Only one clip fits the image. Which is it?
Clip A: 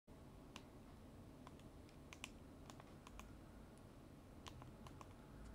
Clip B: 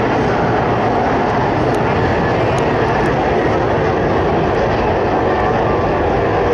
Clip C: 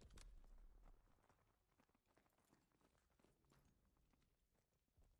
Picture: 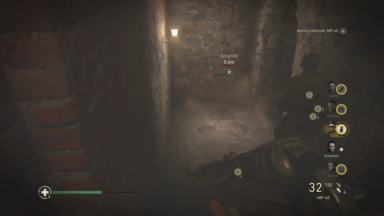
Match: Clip C